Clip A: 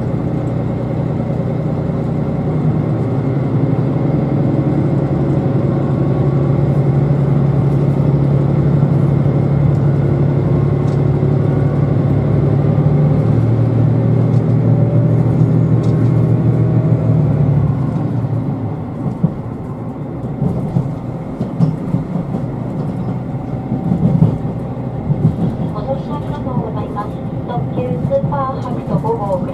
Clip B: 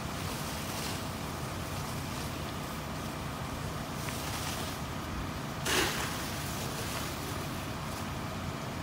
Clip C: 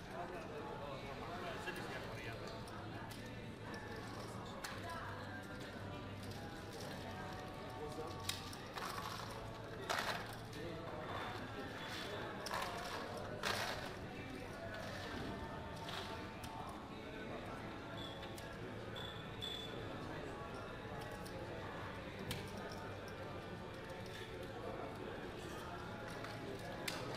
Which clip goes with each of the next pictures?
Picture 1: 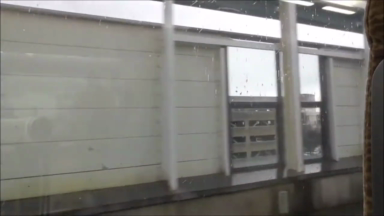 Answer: A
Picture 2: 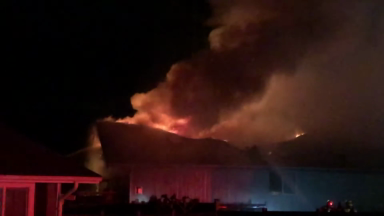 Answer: B